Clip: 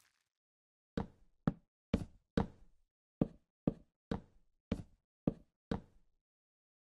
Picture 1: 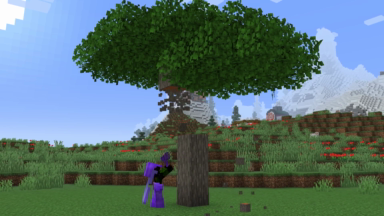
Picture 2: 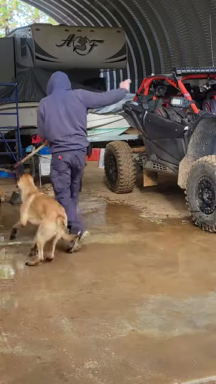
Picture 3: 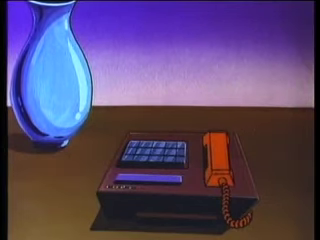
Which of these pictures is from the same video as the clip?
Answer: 1